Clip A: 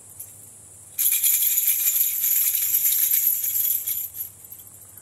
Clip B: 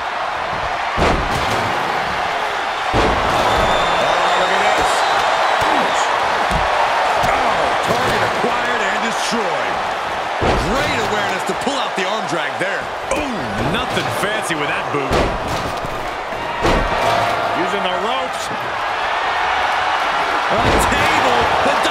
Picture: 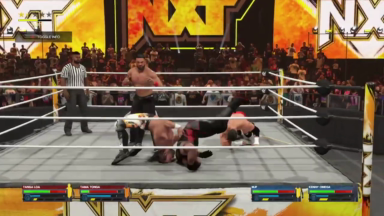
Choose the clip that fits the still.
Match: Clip B